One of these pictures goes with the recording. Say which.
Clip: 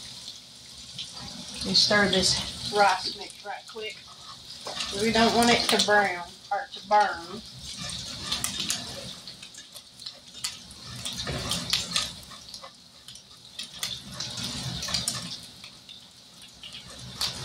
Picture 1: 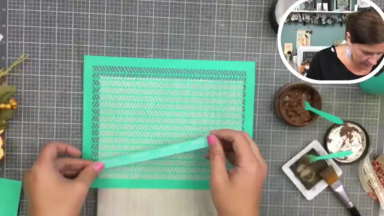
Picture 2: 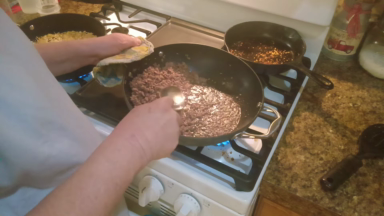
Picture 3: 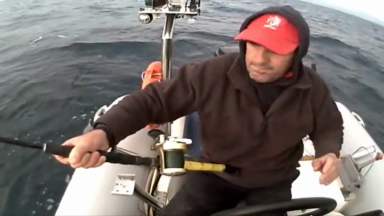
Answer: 2